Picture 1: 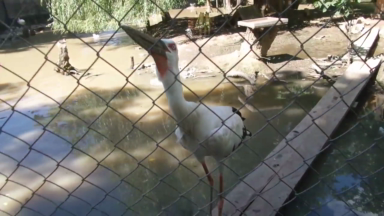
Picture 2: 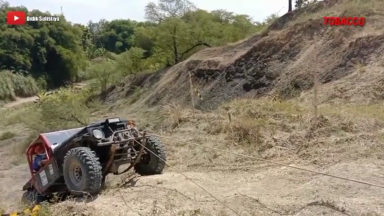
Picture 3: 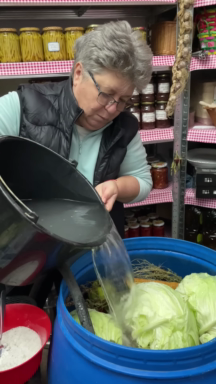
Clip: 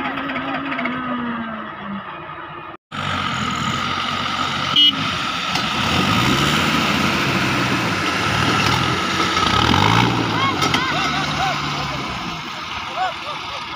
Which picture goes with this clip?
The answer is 2